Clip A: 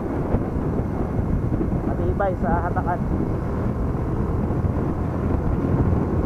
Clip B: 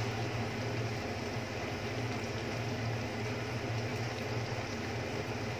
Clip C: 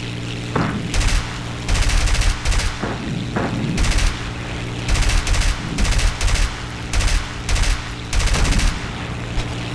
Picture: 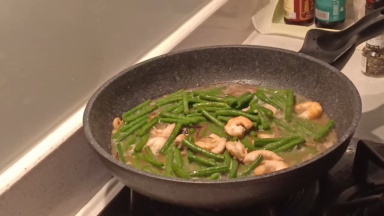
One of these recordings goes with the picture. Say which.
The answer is B